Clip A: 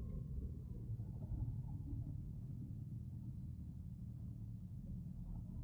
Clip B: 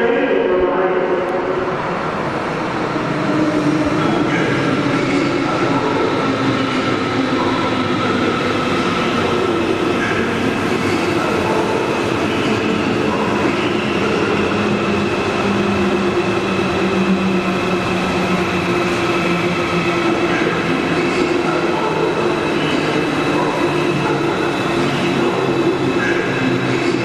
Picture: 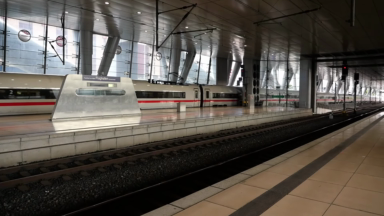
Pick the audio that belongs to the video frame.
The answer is B